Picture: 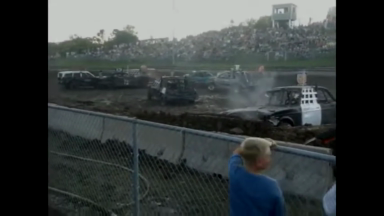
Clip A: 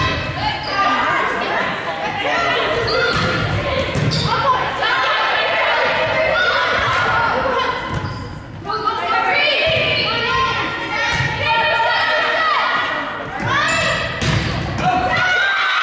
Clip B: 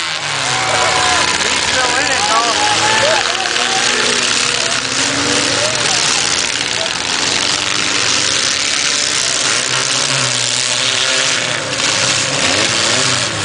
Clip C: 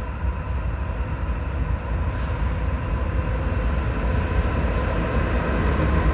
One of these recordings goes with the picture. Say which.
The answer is B